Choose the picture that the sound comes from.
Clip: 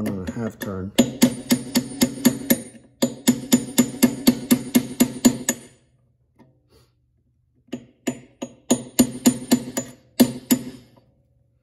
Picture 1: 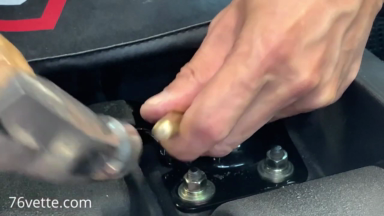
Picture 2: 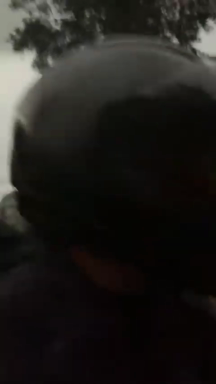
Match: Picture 1